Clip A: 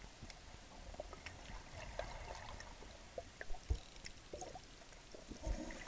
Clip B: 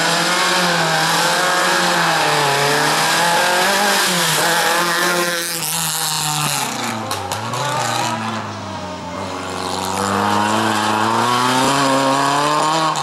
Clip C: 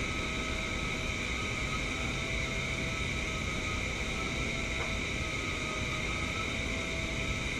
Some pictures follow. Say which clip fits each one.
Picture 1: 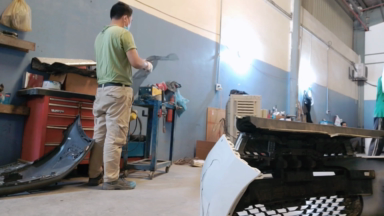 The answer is C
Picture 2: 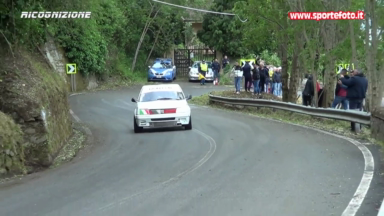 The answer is B